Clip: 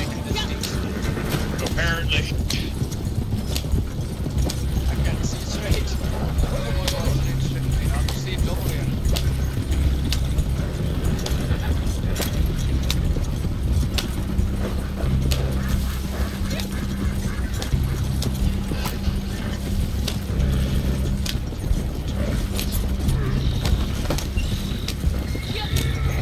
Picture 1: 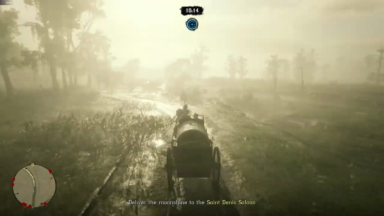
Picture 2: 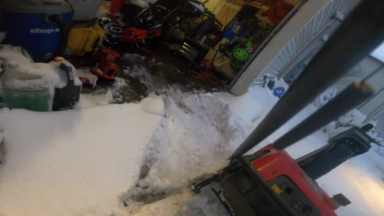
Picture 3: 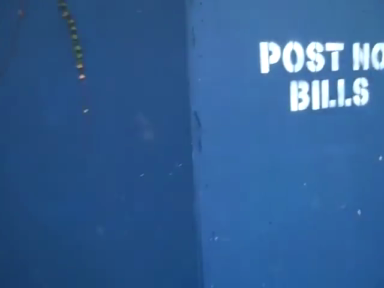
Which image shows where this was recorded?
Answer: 1